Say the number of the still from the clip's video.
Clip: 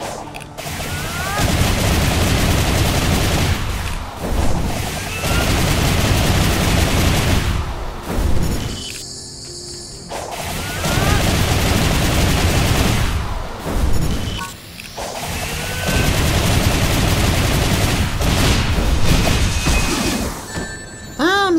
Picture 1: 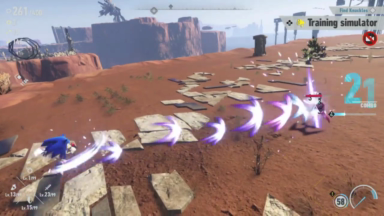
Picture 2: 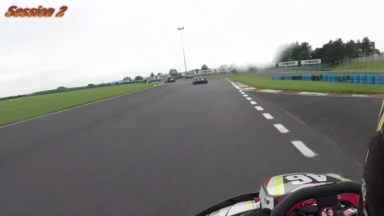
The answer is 1